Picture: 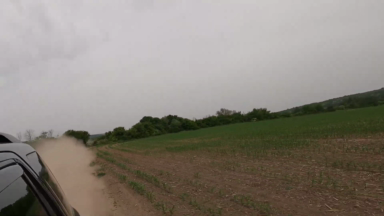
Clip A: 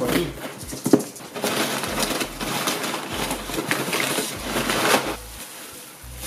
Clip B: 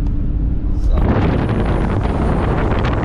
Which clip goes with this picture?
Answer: B